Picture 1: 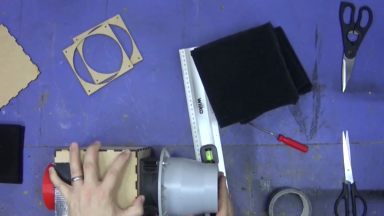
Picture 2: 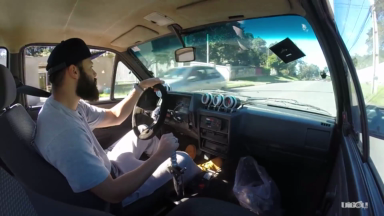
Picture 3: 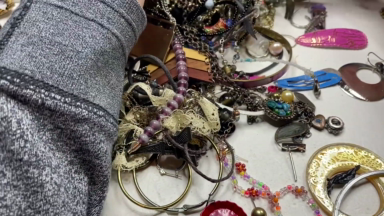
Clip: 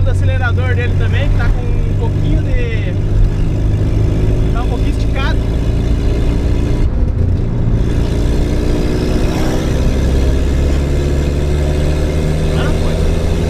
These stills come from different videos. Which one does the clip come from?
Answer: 2